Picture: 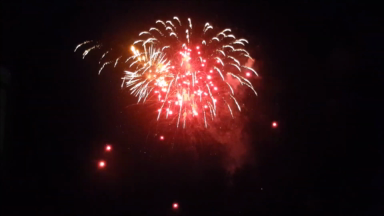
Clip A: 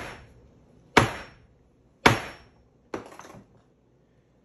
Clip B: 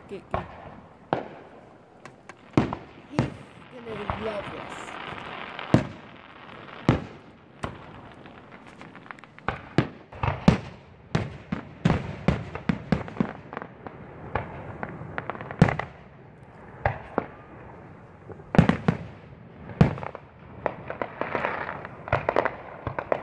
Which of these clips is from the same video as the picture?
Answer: B